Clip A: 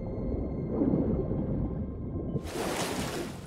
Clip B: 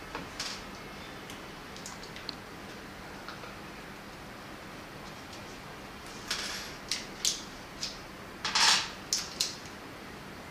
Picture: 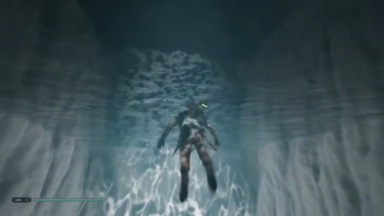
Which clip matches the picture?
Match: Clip A